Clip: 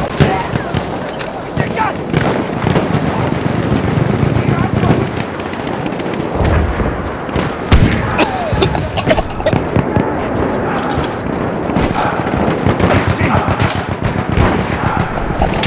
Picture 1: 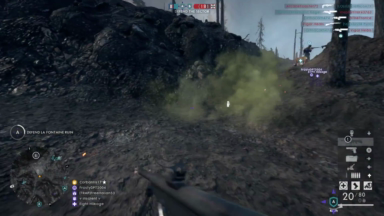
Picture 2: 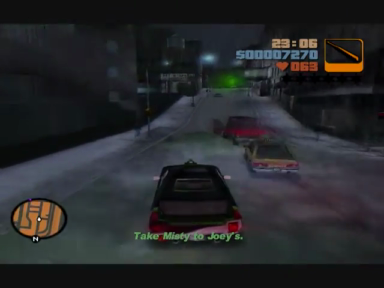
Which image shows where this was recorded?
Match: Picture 1